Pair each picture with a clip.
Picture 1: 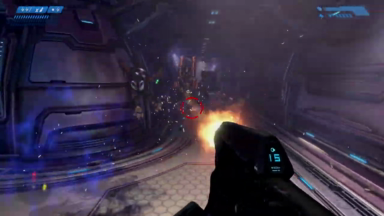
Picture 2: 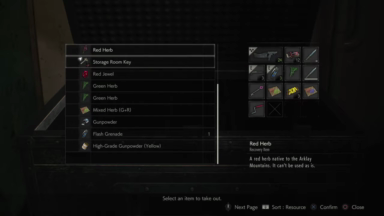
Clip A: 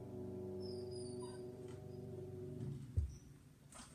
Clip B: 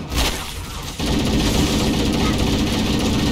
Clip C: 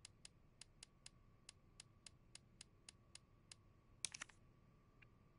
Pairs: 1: B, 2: C